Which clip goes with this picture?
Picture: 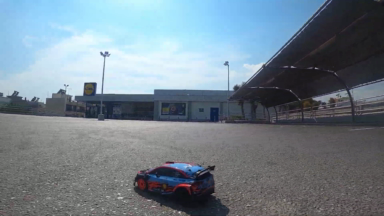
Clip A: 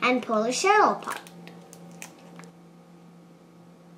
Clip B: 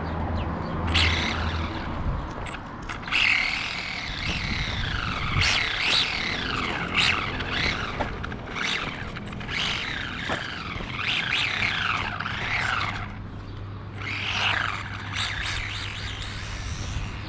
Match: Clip B